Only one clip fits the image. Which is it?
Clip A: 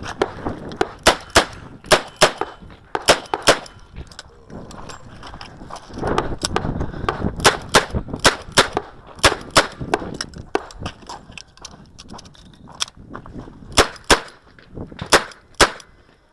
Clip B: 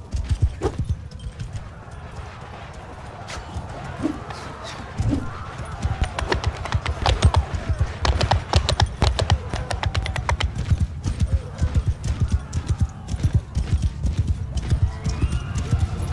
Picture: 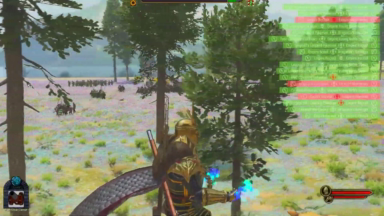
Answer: B